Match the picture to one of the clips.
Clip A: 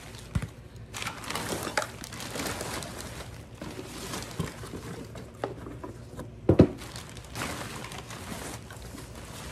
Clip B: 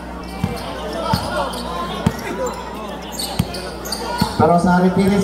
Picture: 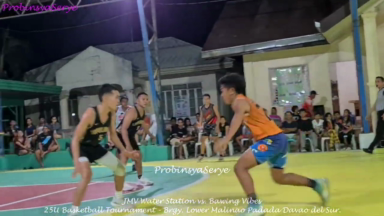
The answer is B